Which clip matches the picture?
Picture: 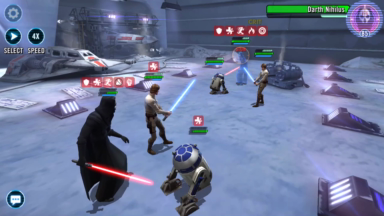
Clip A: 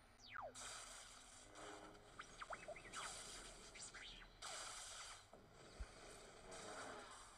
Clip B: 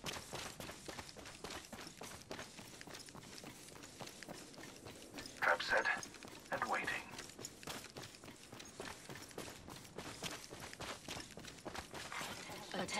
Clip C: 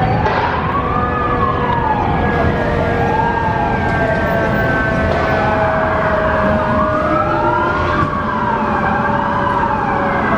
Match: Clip A